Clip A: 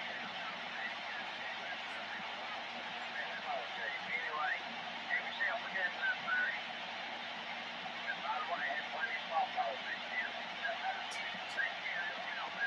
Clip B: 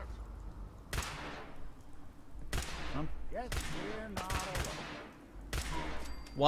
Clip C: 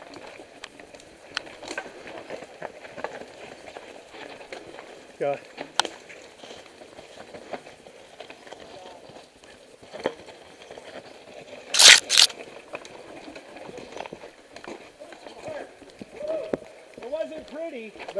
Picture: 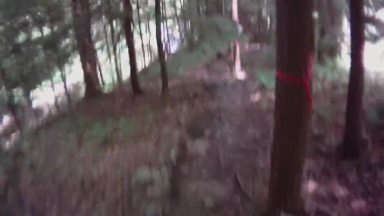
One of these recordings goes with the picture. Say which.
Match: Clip C